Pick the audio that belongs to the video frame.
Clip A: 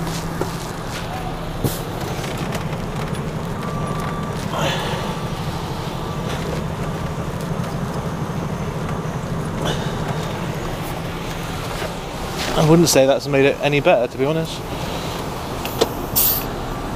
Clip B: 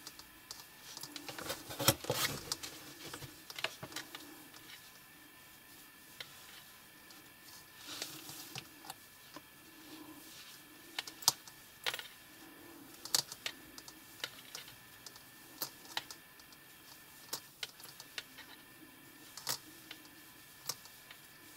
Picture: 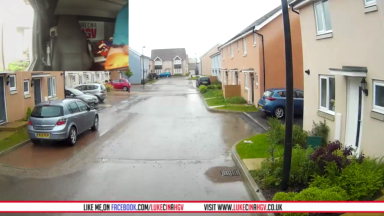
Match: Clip A